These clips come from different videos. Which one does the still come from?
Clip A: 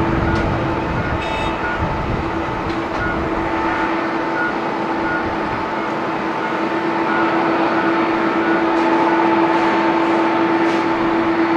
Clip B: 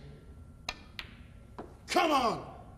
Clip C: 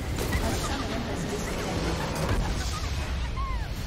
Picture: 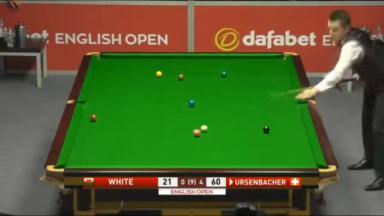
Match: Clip B